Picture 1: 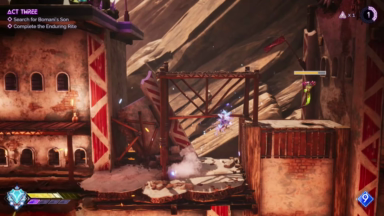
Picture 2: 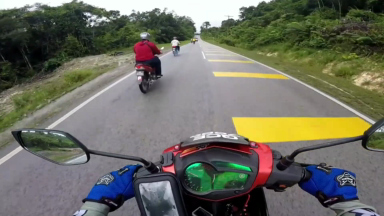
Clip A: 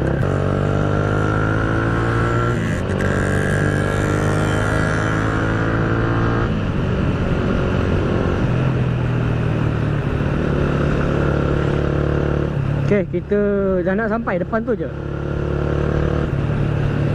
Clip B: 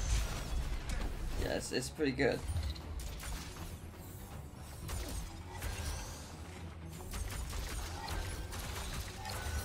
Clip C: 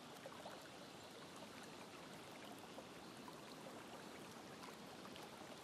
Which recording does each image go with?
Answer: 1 B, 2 A